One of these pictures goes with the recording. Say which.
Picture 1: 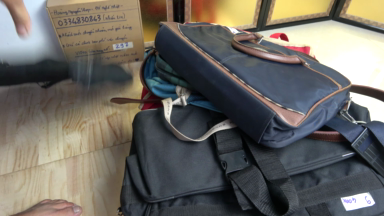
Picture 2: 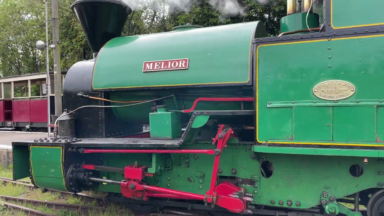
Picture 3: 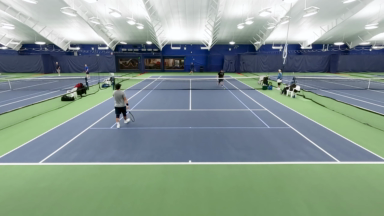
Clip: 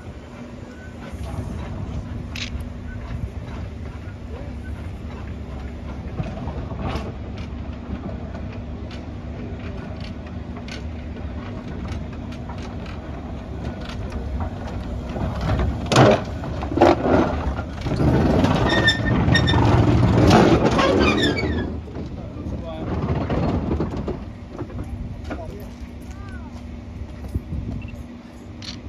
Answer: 2